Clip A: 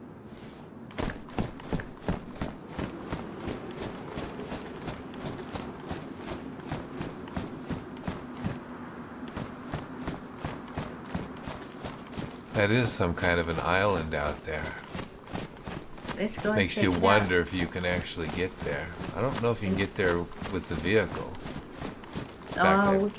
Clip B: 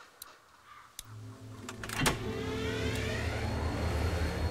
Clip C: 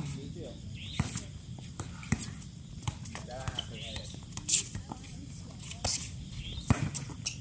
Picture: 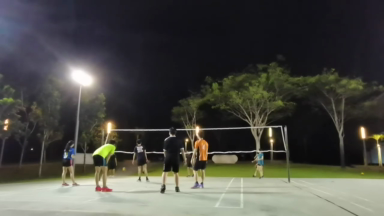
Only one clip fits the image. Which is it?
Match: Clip C